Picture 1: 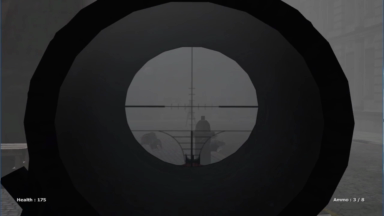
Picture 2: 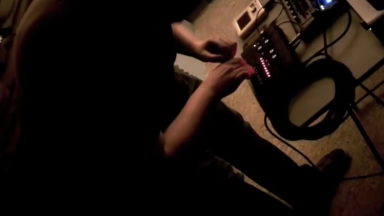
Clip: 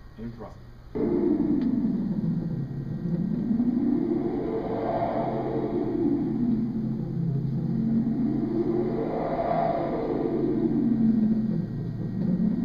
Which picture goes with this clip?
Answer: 2